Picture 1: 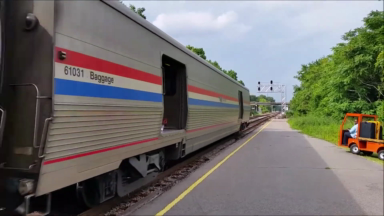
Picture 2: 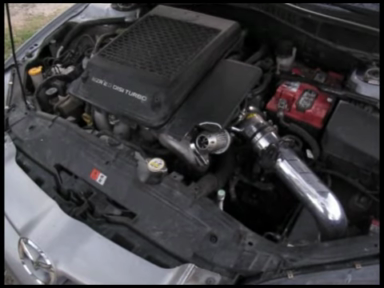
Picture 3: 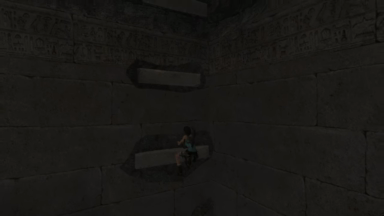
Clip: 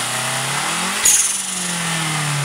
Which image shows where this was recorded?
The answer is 2